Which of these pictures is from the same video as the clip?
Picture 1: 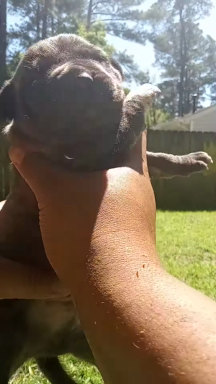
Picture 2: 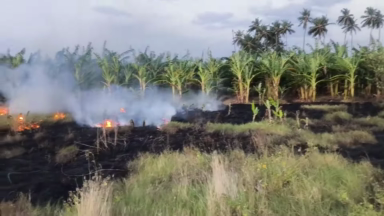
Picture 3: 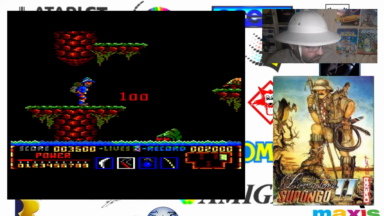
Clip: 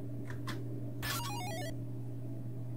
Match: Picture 3